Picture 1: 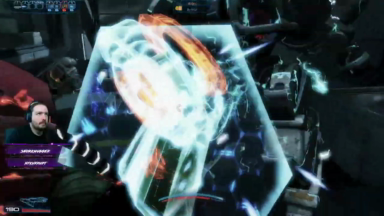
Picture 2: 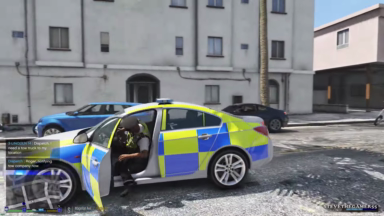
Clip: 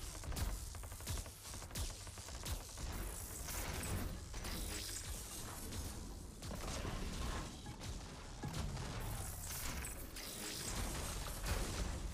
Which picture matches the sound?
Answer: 1